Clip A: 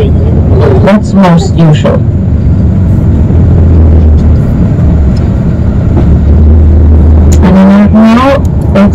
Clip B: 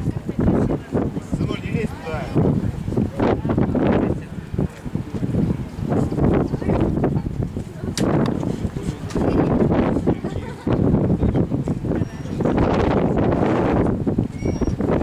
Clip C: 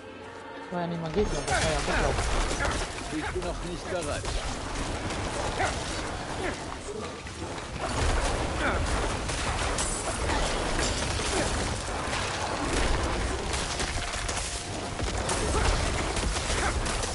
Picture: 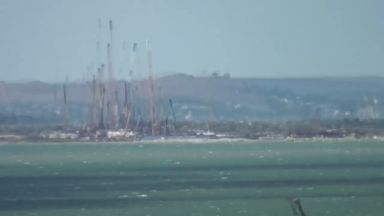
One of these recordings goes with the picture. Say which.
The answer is B